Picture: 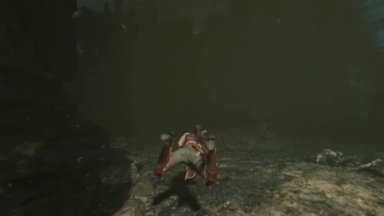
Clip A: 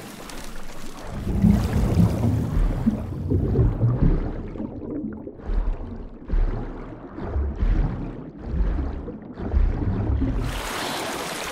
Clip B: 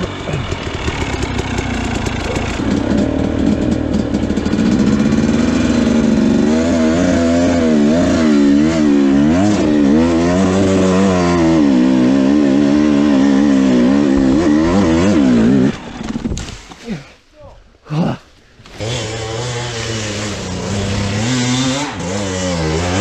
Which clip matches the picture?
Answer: A